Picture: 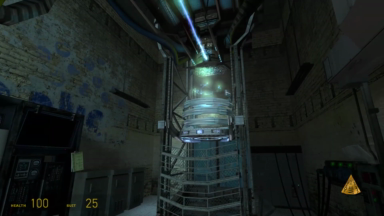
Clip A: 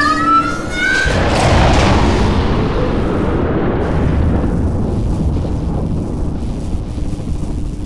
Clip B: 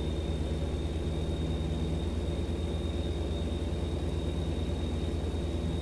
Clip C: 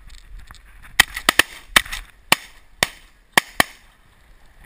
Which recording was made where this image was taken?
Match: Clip A